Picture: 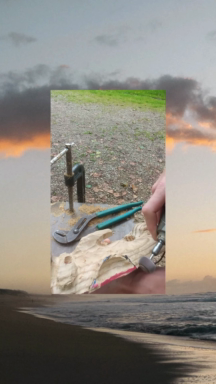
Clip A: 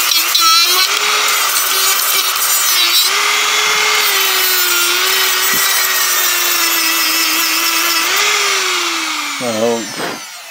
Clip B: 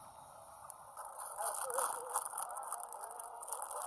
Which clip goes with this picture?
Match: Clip A